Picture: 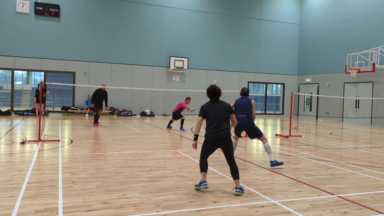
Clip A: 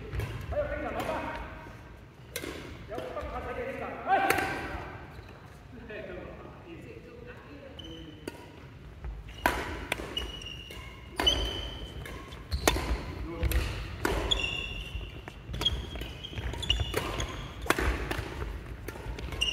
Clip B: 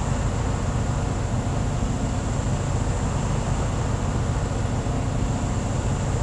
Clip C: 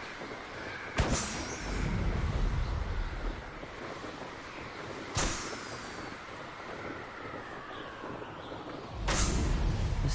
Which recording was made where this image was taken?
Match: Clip A